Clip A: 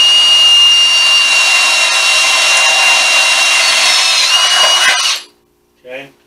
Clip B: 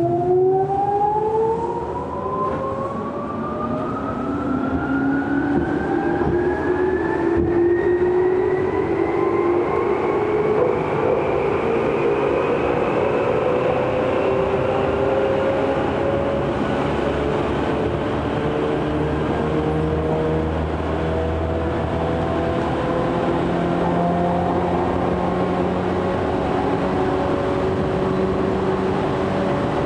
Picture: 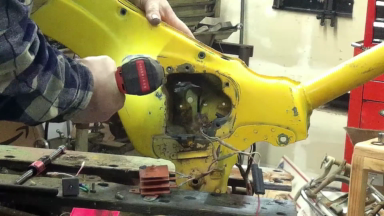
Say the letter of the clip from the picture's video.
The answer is A